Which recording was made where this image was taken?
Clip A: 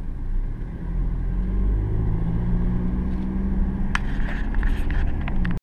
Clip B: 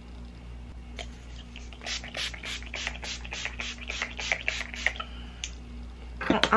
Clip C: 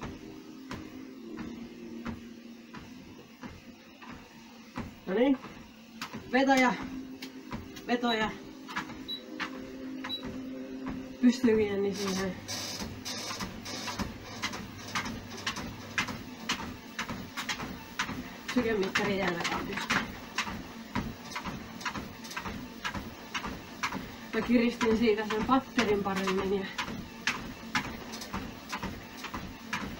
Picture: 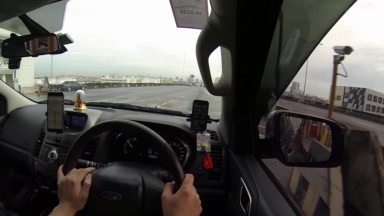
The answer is A